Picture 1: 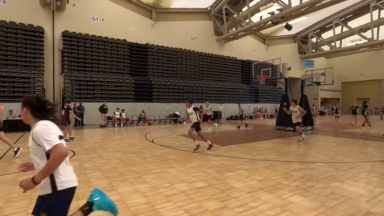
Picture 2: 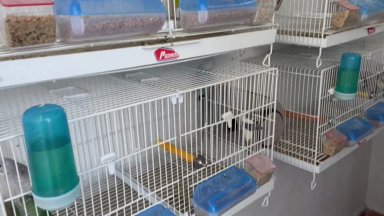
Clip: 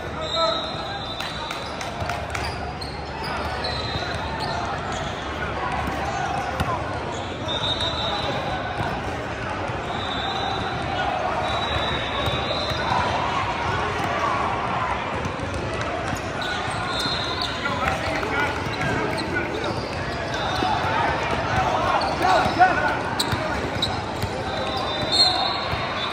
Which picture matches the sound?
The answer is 1